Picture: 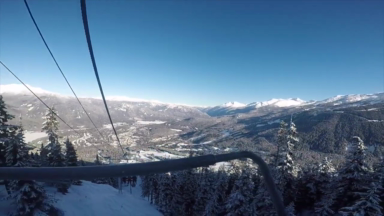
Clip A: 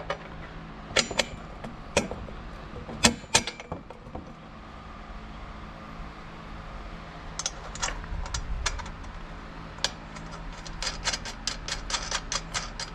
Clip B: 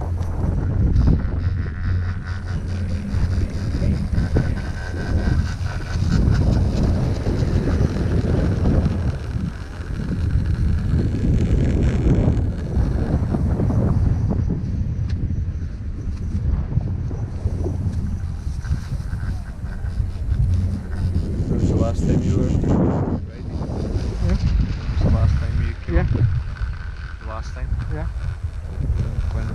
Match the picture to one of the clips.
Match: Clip B